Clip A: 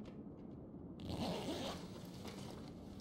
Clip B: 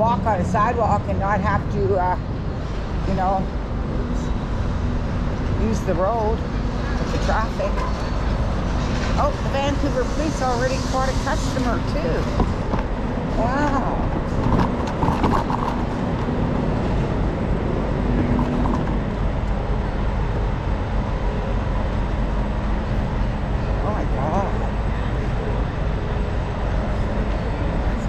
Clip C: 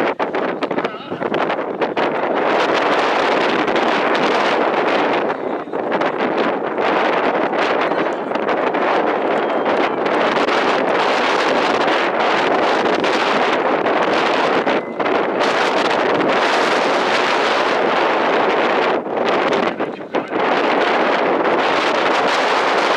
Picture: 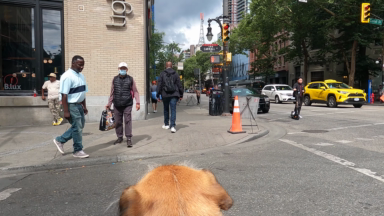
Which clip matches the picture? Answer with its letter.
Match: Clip B